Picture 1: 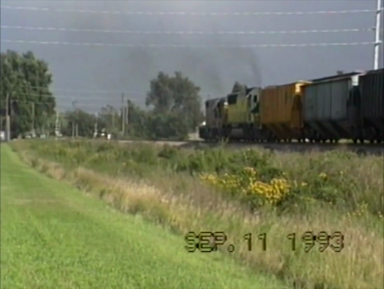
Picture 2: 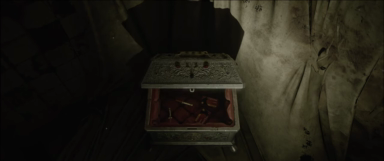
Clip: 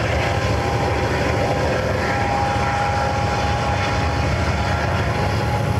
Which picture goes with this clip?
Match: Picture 1